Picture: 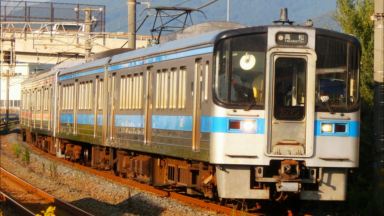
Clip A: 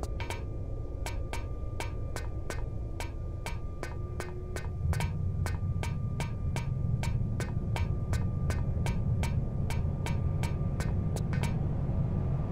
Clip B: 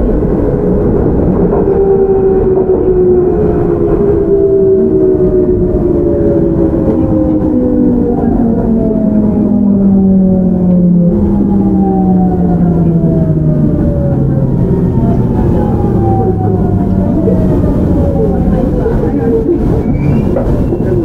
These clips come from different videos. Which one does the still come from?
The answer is B